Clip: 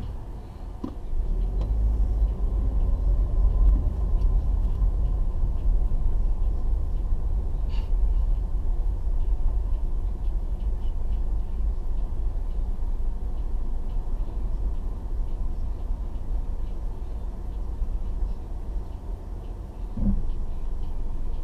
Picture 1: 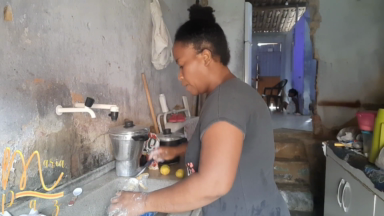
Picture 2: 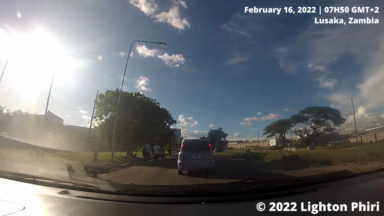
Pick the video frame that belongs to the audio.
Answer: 2